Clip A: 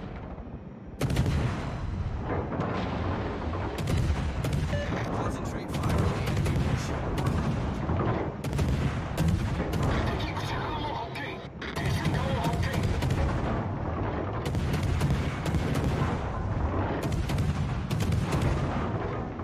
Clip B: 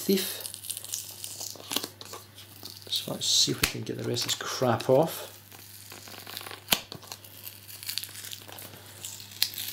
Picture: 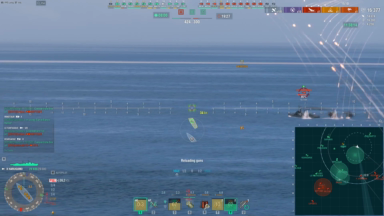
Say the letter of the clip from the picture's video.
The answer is A